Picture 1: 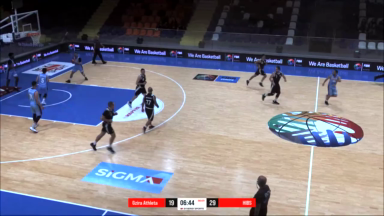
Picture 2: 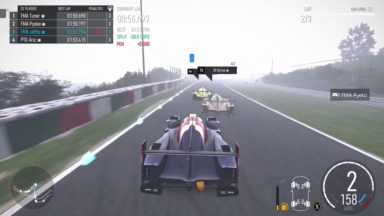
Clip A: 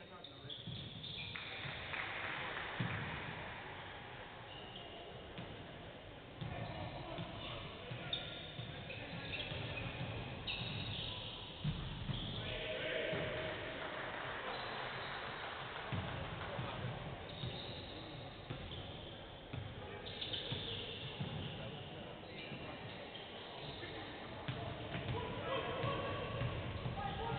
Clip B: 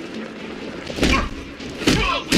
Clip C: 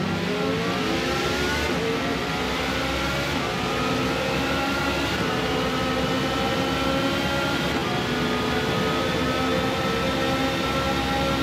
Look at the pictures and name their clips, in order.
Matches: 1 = A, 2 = C